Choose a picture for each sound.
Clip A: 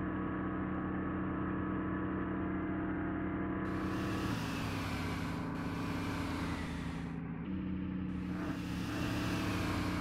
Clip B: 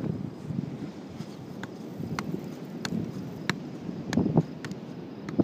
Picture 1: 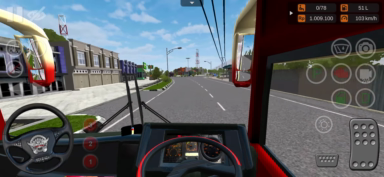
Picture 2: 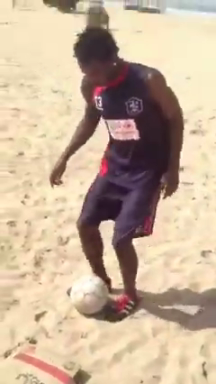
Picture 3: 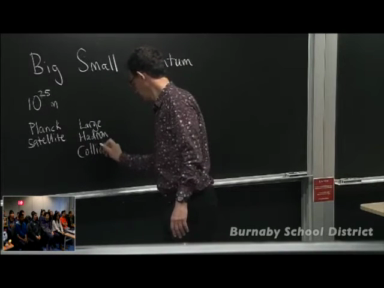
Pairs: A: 1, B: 2